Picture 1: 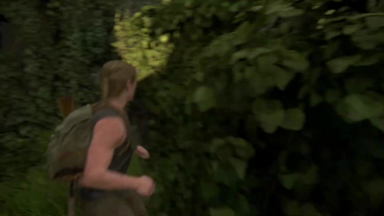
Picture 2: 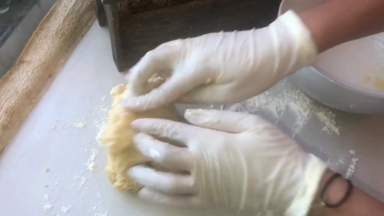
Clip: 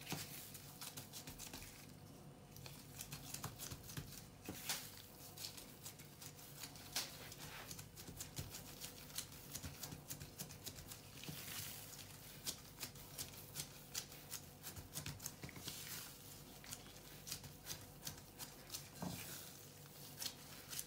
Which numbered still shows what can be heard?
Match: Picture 2